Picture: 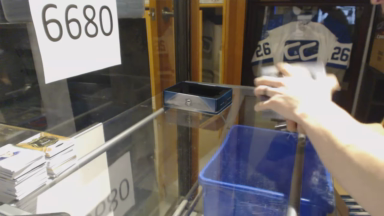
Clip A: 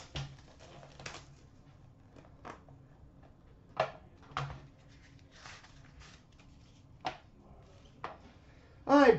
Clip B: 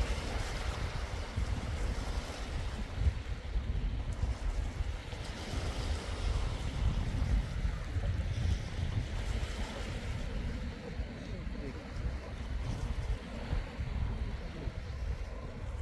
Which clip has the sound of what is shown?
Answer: A